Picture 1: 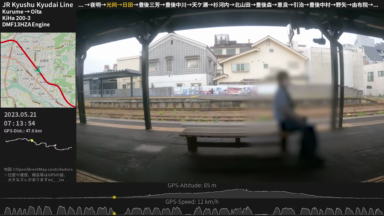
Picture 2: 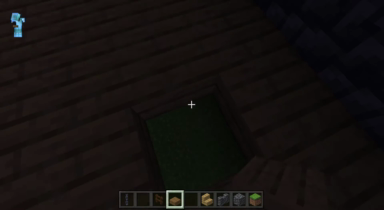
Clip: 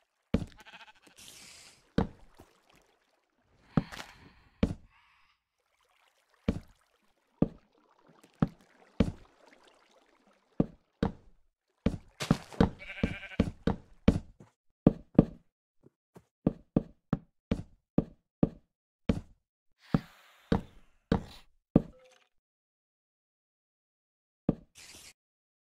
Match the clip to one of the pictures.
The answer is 2